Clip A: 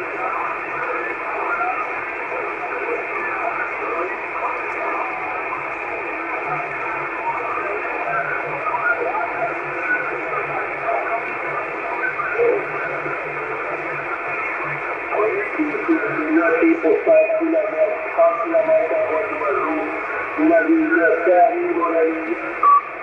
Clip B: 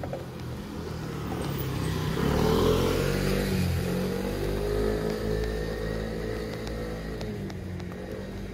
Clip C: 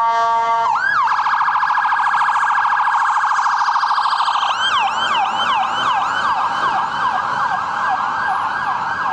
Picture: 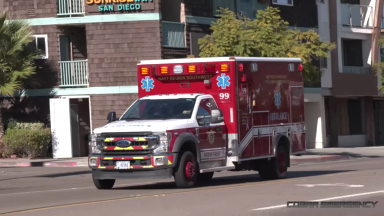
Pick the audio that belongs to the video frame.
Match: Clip C